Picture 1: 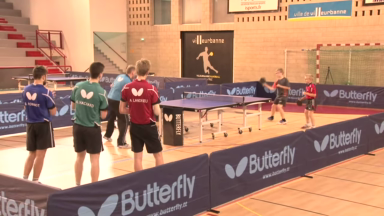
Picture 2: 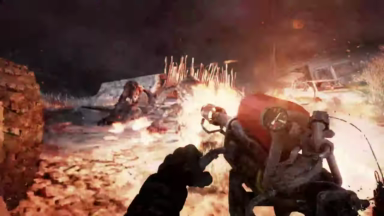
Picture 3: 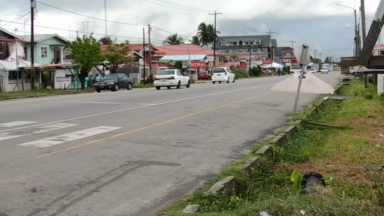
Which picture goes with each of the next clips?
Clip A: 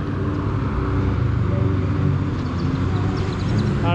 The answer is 3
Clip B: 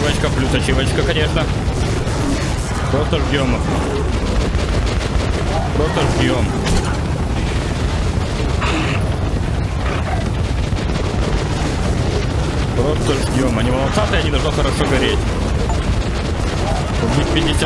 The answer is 2